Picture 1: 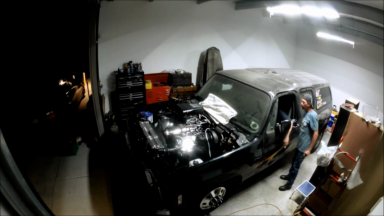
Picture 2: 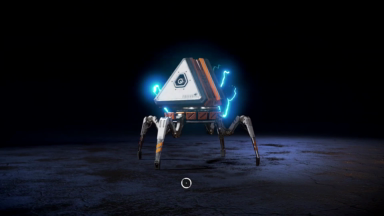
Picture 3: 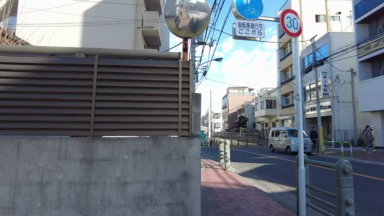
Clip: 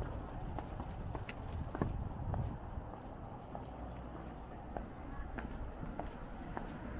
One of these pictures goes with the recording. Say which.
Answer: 3